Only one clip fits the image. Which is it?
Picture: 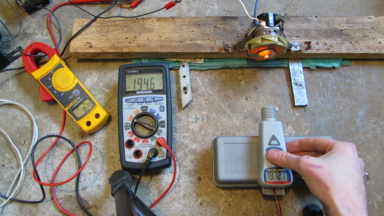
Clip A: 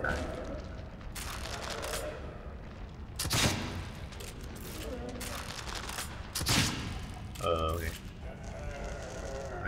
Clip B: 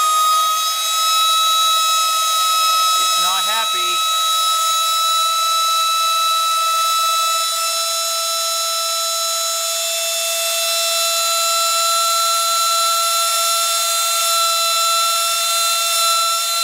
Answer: B